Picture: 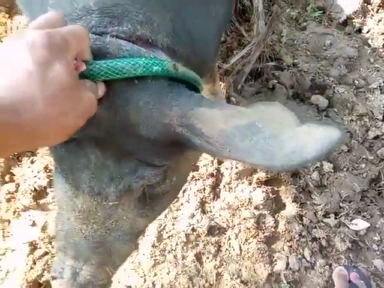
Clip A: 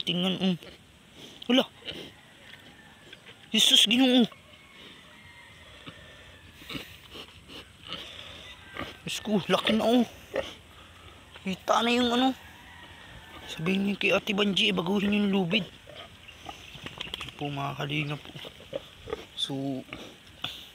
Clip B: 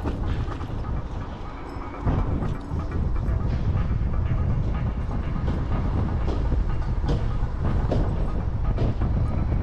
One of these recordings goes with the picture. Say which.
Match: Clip A